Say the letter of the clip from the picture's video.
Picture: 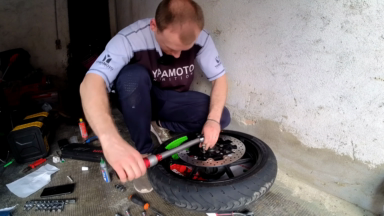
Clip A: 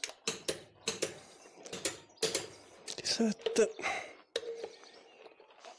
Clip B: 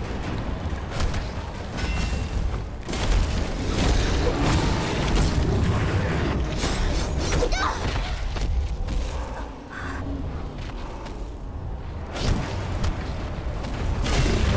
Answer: A